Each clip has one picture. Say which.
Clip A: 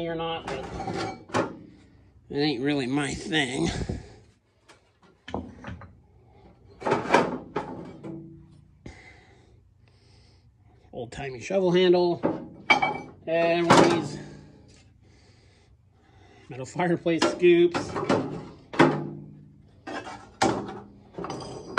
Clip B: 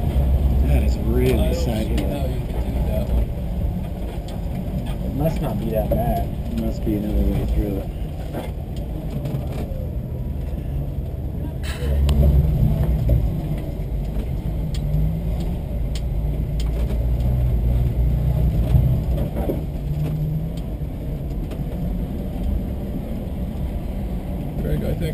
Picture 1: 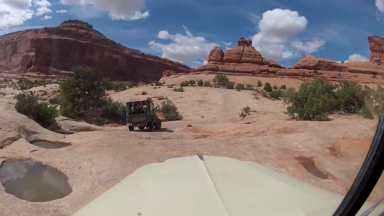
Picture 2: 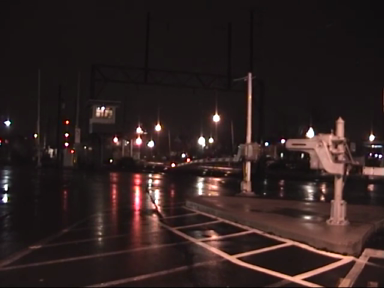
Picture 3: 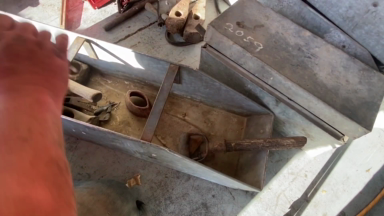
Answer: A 3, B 1